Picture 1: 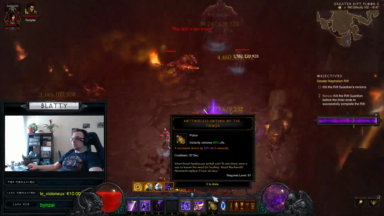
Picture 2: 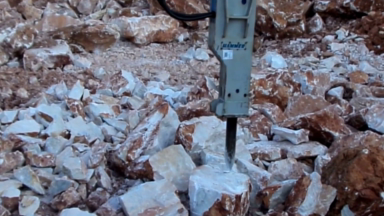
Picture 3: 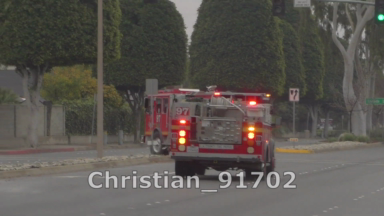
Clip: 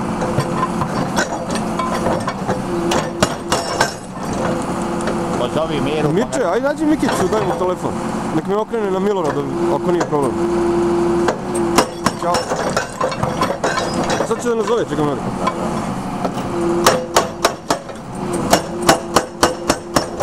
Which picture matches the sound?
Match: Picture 2